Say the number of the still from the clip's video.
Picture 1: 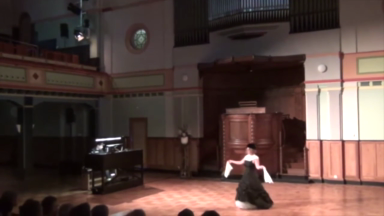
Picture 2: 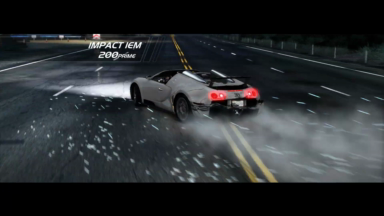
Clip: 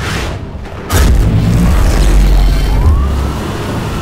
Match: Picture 2